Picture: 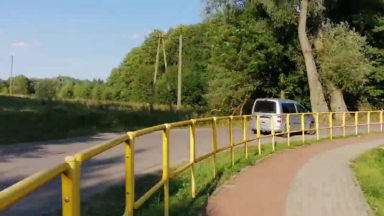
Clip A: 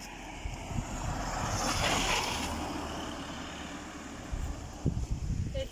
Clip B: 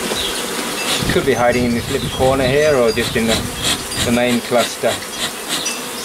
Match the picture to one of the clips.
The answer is A